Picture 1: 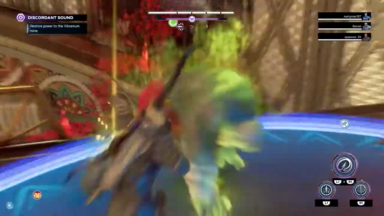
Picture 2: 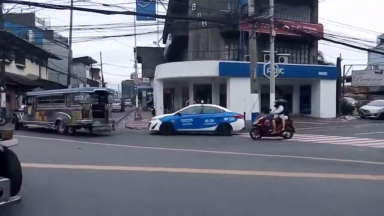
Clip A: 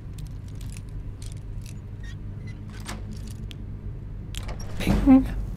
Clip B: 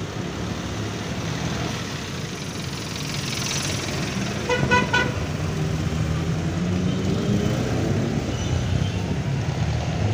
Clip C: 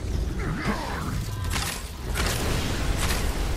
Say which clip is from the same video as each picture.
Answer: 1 C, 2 B